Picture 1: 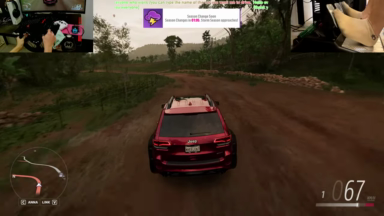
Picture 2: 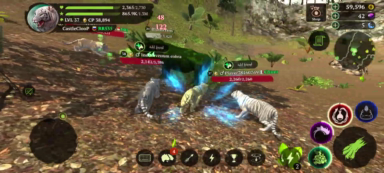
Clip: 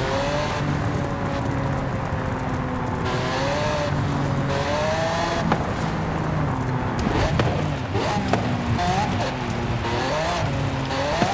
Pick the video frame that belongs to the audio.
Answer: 1